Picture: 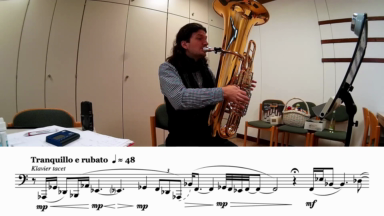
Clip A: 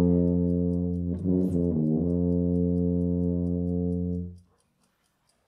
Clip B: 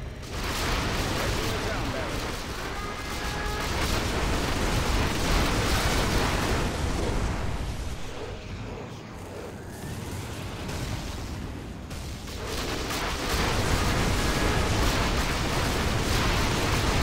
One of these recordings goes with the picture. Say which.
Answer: A